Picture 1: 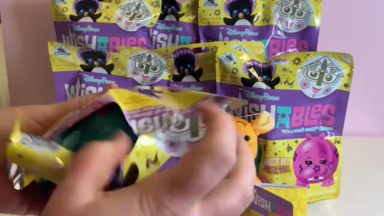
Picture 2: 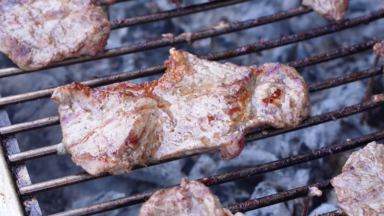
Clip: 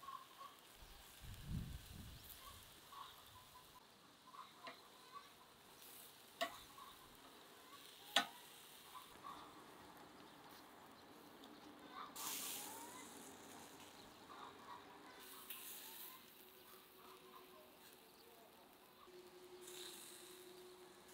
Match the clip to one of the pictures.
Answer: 2